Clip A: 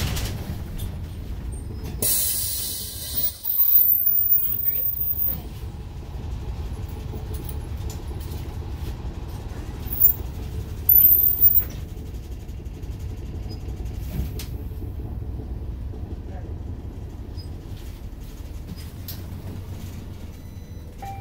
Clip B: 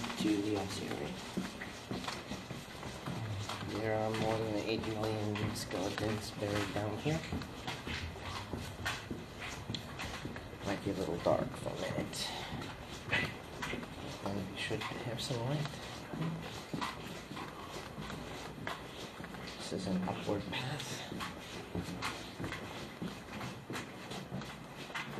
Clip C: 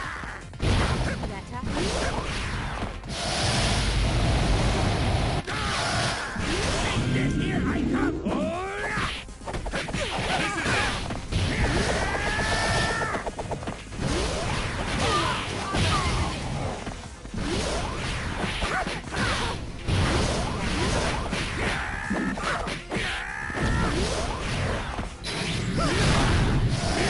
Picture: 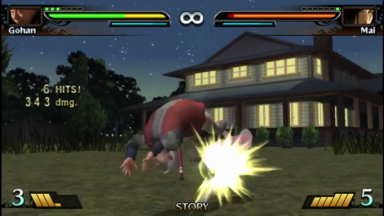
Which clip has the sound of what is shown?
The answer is C